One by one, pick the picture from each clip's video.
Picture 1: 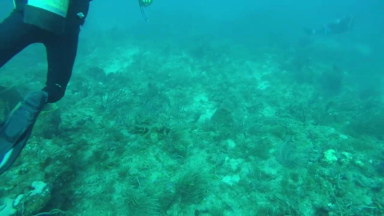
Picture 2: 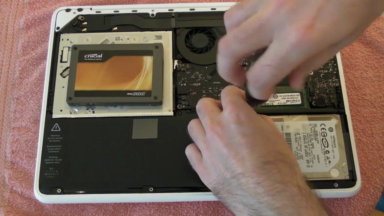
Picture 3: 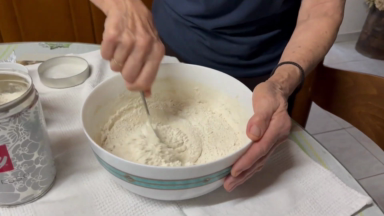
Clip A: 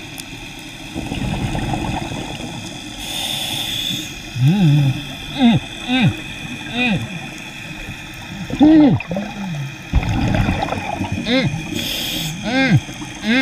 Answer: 1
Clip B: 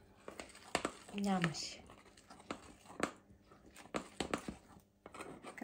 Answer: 3